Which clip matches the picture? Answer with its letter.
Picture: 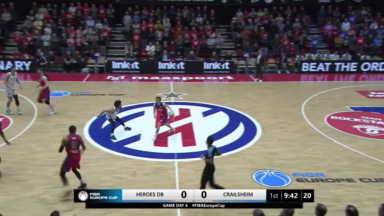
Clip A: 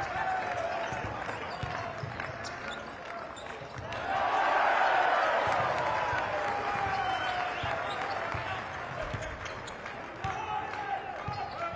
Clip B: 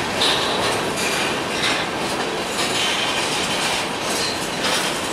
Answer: A